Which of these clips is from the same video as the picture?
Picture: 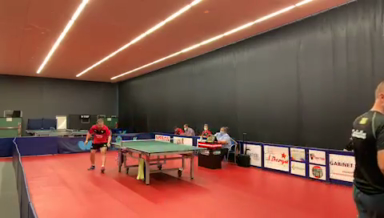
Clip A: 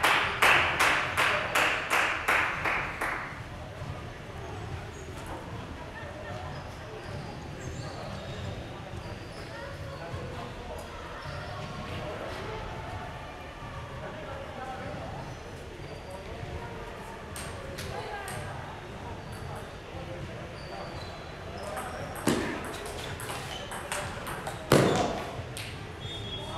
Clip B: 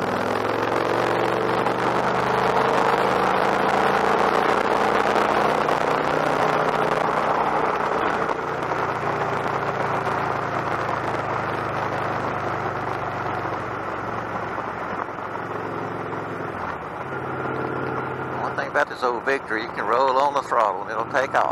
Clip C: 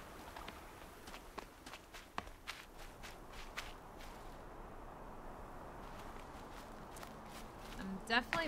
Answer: A